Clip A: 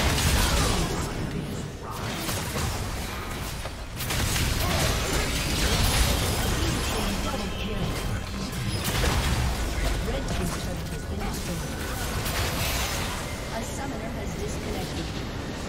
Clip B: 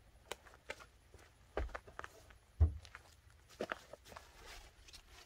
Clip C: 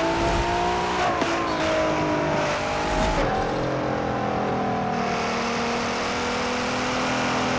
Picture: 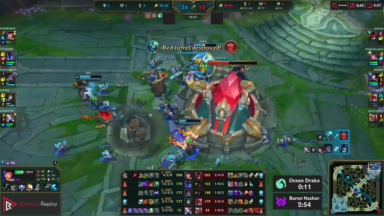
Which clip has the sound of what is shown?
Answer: A